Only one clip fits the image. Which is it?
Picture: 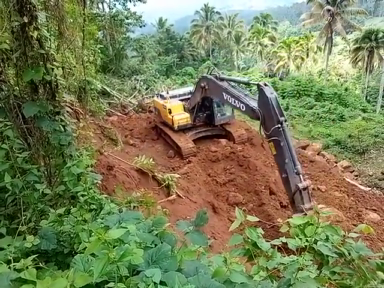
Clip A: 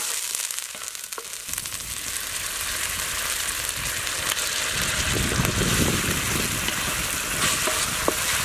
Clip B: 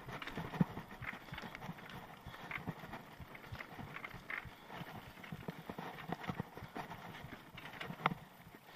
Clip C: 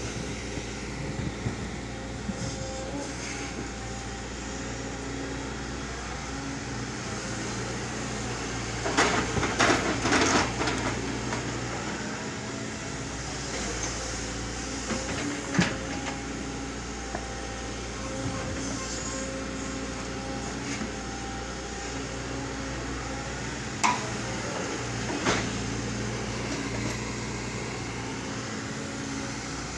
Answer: C